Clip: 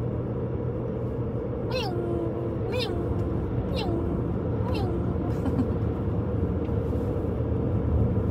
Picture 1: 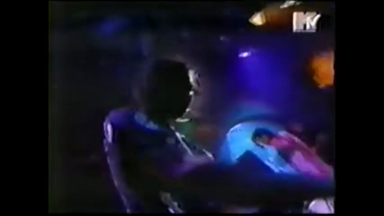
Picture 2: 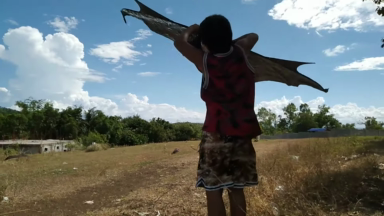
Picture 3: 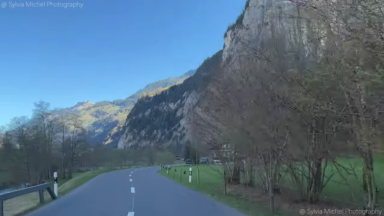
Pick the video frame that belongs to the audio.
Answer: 3